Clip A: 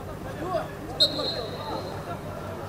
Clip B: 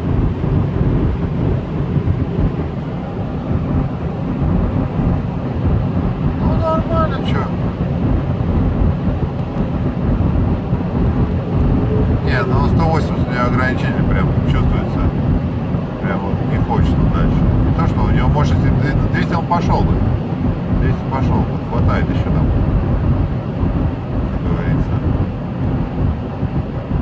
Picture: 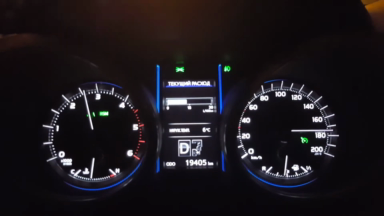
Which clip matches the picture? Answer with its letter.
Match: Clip B